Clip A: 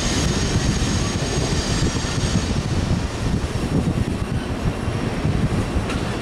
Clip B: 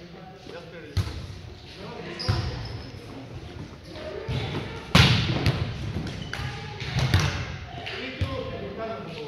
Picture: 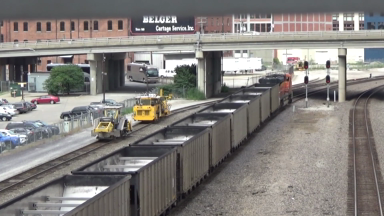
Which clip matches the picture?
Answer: A